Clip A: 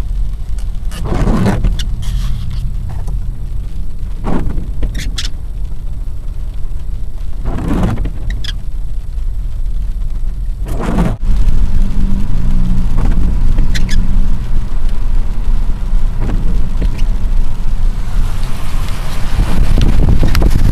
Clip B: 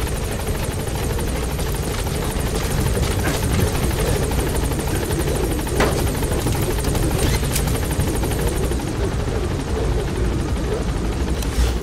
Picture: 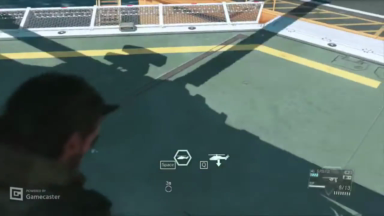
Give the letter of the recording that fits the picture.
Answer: B